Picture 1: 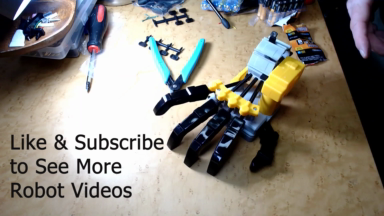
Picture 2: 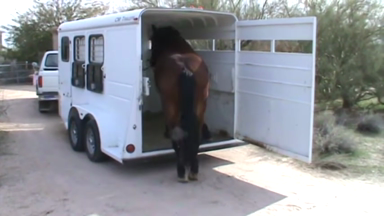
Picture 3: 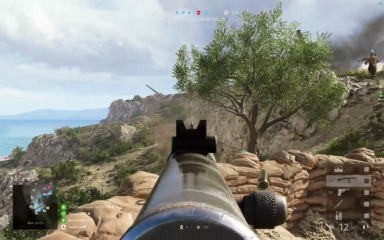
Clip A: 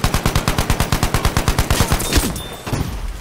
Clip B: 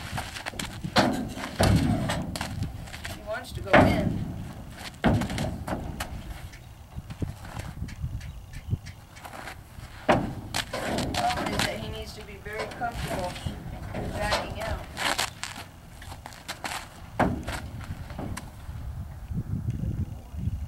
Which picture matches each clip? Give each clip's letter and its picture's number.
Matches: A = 3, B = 2